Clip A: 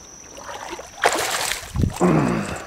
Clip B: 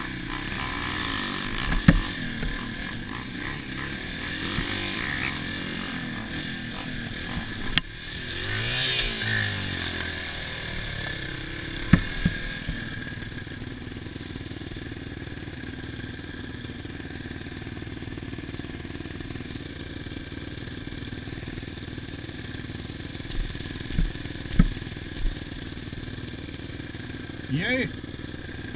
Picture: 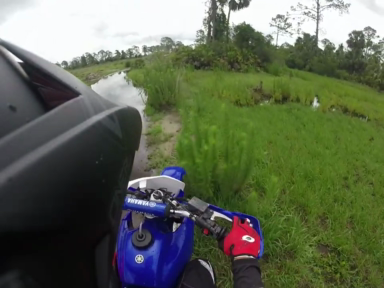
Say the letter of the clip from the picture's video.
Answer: B